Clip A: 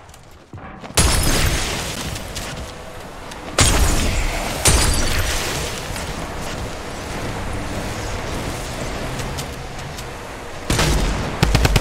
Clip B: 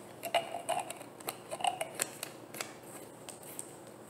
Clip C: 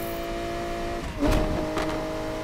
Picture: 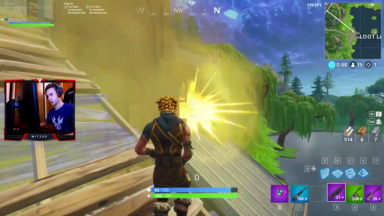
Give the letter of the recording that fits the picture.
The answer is A